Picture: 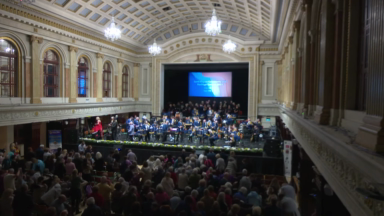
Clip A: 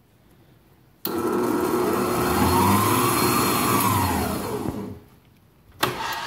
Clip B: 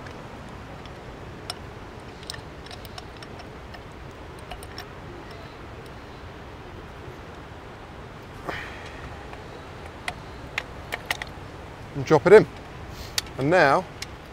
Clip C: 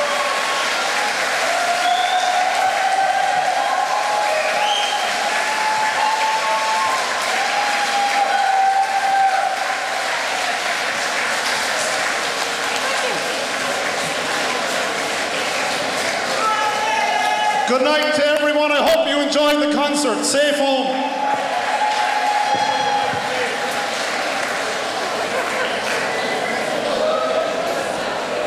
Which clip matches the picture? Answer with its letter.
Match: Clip C